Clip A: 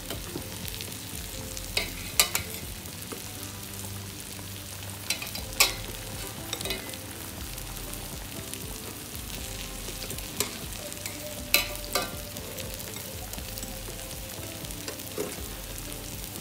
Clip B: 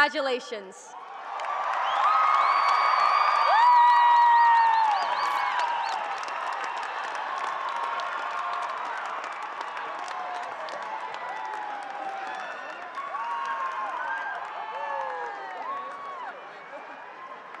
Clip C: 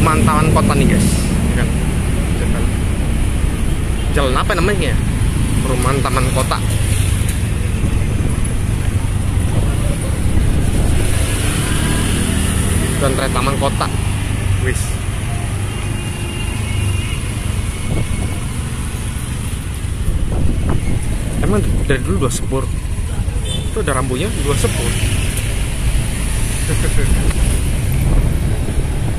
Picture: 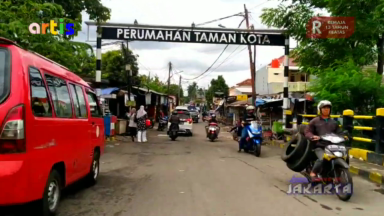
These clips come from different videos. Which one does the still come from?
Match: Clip C